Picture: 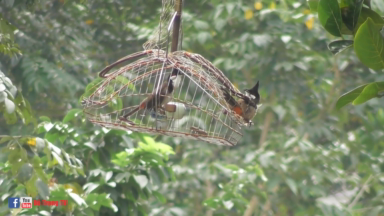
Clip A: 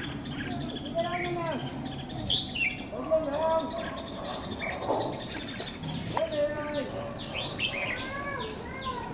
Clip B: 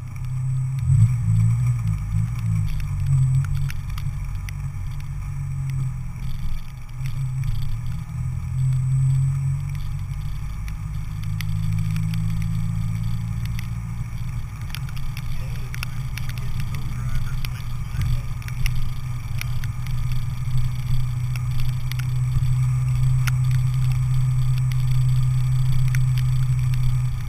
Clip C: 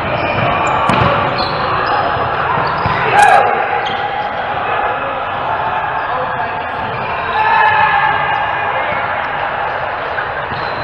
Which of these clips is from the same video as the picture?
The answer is A